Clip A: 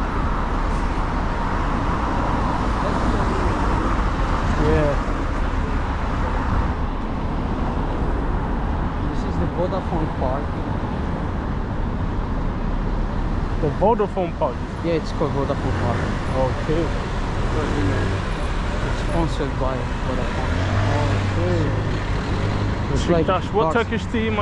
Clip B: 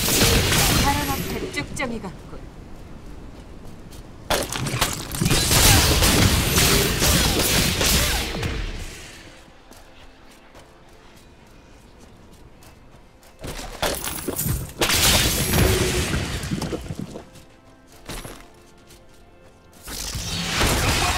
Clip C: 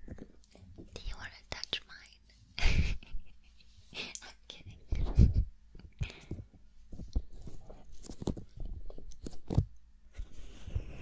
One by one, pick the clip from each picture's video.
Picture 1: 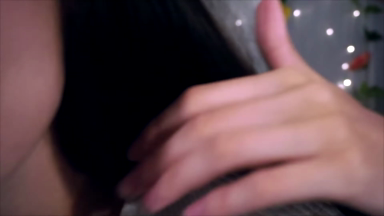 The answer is C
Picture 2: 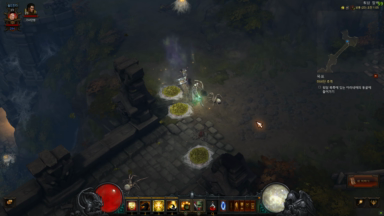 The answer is B